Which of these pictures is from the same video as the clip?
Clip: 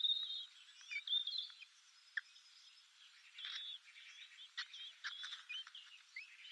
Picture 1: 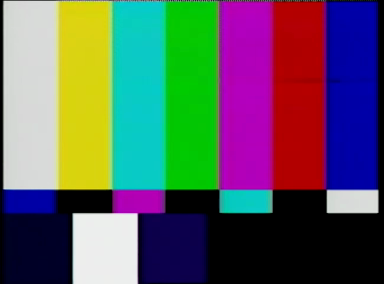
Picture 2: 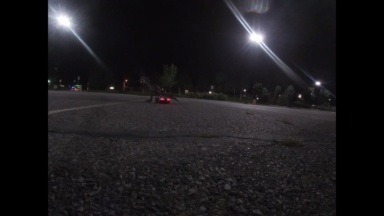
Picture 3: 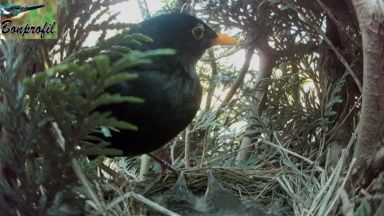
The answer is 3